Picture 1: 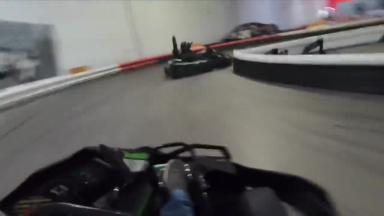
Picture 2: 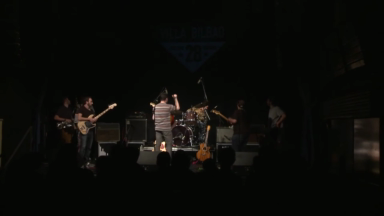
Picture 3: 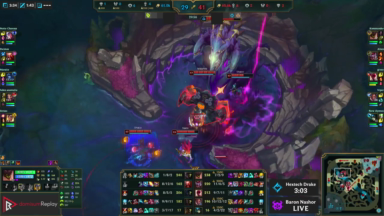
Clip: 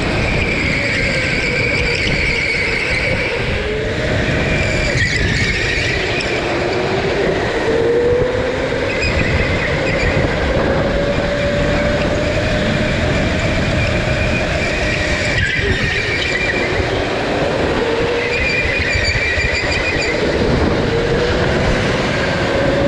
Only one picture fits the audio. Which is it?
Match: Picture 1